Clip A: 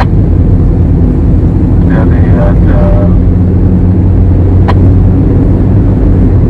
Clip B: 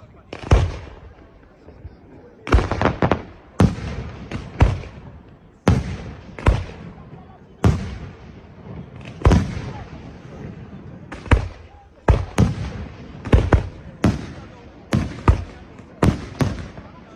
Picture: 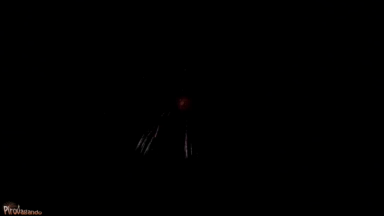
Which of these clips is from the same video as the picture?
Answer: B